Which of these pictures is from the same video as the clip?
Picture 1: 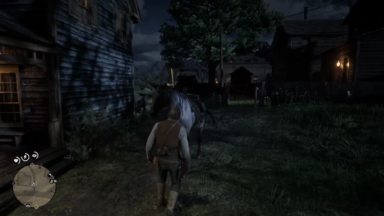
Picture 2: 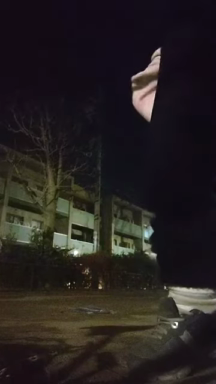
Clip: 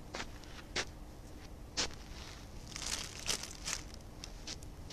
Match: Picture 2